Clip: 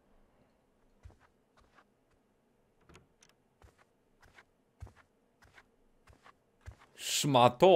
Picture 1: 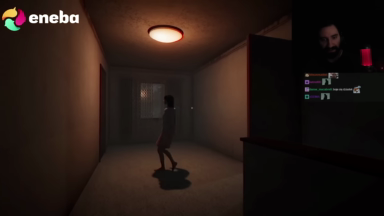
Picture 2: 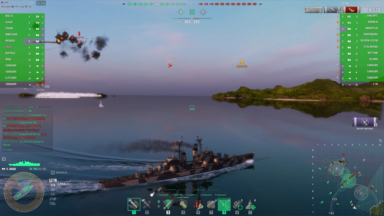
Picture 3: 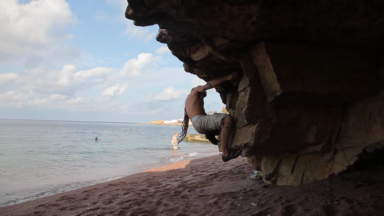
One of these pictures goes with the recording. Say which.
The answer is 1